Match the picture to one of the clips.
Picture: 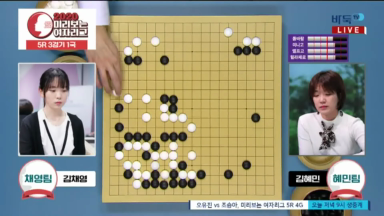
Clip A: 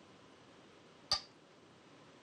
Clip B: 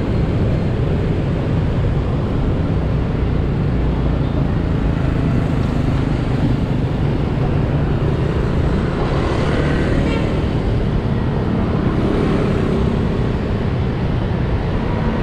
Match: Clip A